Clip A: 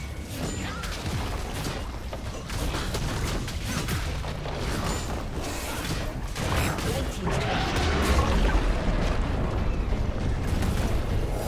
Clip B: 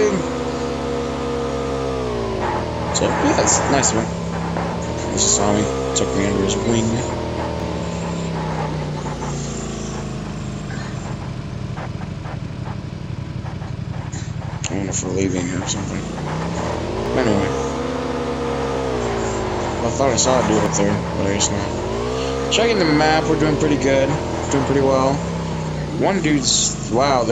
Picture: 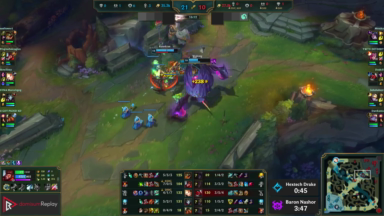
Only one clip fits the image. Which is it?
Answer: A